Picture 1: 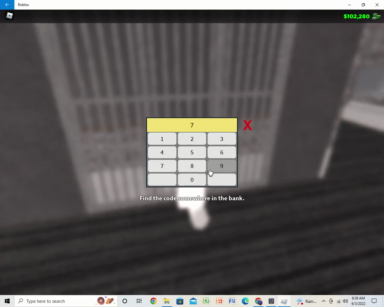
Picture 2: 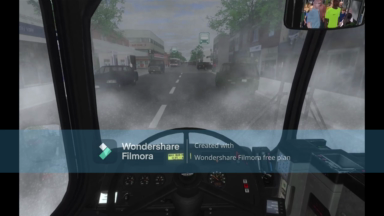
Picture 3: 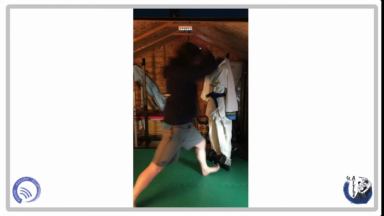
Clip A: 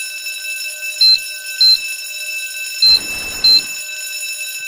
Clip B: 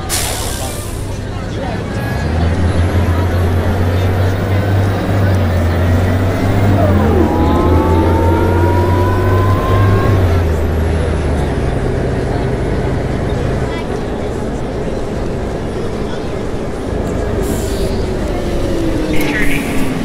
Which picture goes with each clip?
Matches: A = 1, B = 2